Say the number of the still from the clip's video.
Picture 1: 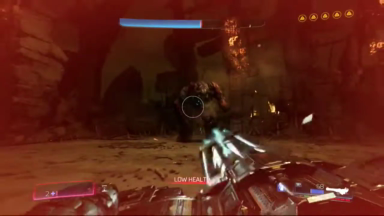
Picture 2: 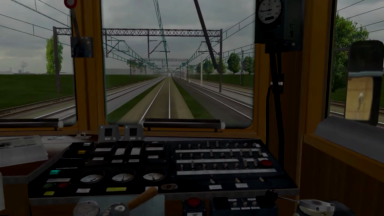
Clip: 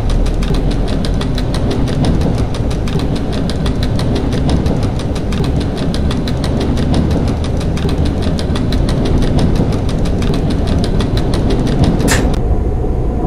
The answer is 2